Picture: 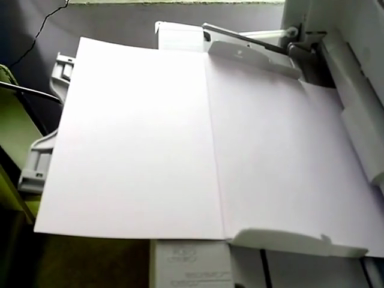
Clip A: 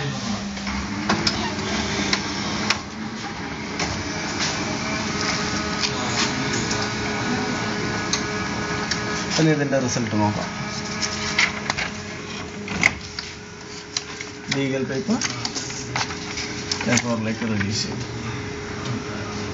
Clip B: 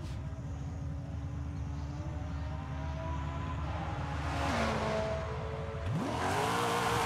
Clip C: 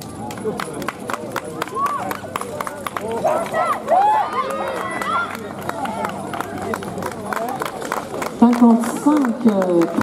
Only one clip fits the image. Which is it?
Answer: A